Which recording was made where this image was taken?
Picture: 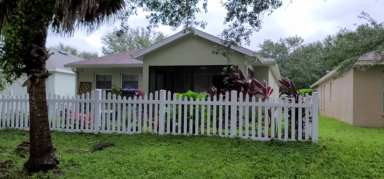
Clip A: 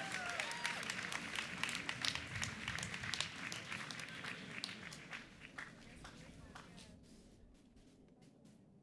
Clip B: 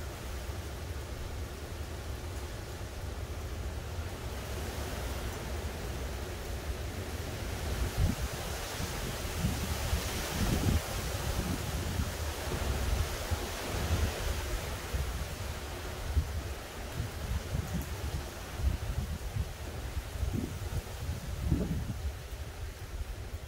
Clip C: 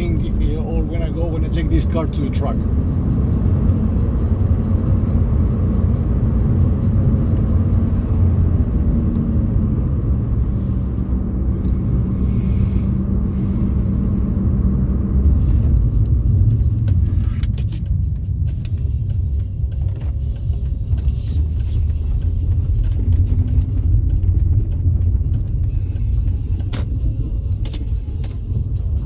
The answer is B